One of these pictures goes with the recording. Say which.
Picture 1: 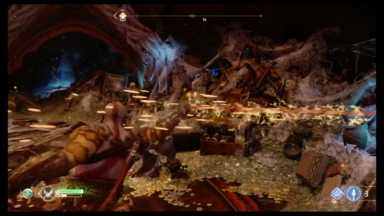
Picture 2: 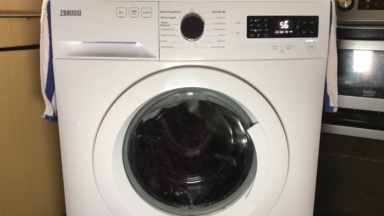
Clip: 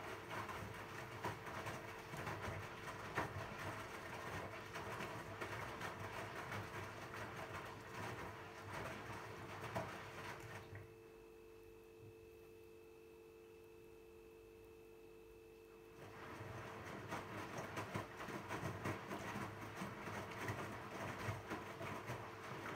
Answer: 2